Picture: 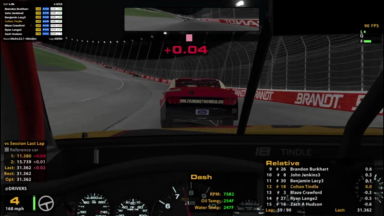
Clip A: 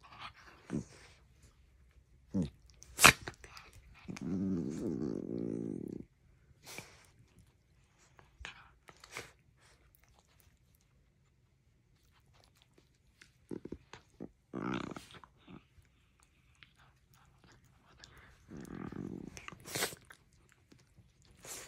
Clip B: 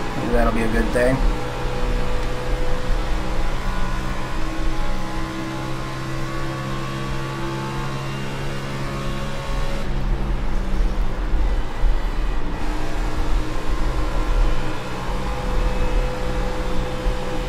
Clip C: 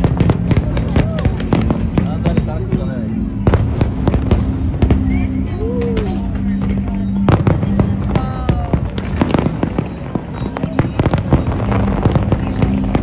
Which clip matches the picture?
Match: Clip B